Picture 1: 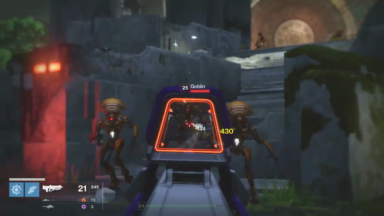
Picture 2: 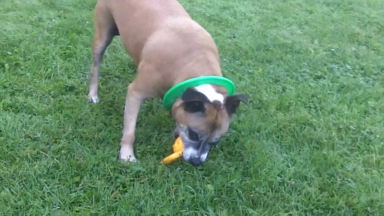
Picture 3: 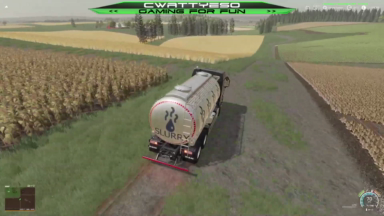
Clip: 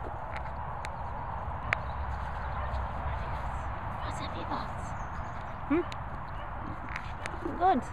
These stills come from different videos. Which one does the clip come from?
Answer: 2